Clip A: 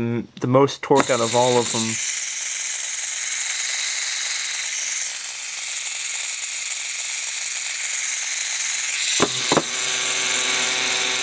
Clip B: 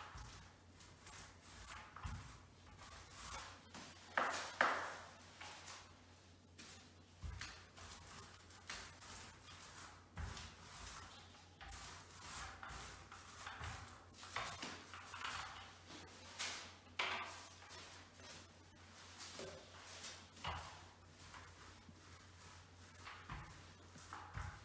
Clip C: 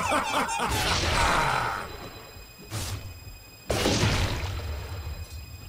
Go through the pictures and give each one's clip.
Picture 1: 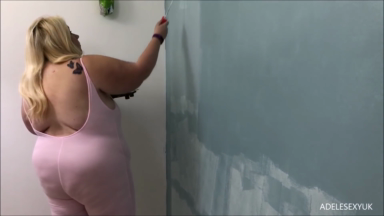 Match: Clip B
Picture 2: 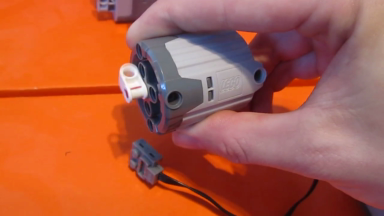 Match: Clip A